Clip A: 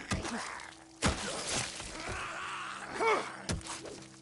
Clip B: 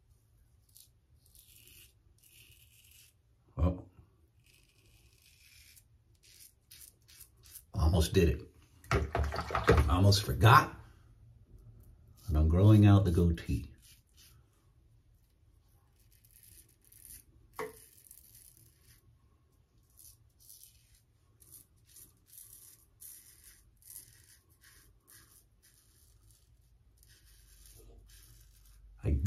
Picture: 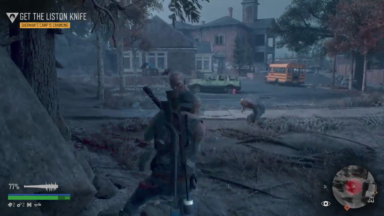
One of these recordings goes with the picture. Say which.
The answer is A